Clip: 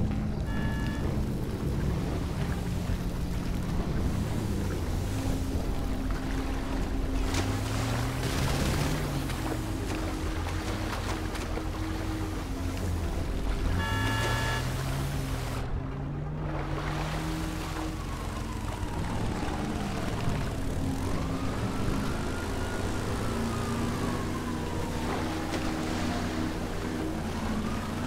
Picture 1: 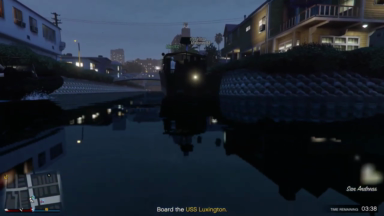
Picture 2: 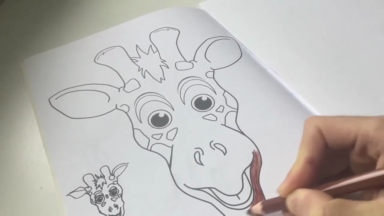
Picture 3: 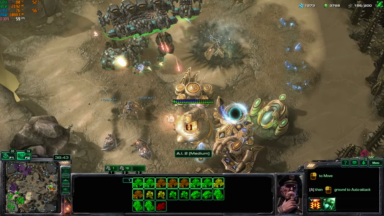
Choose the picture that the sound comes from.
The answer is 1